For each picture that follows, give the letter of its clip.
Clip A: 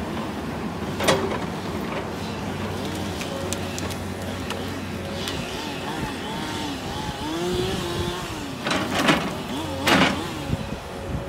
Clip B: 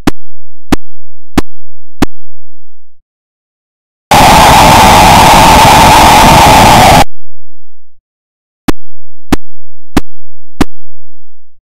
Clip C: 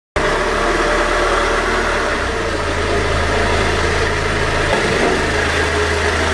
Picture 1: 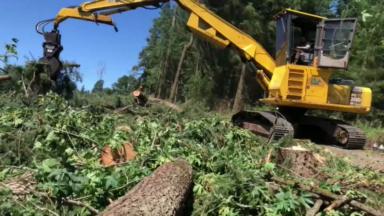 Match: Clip A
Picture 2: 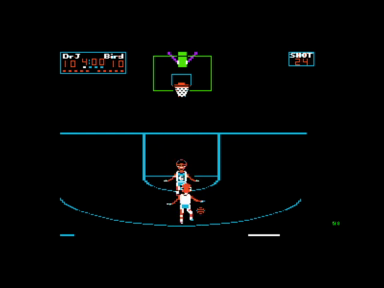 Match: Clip B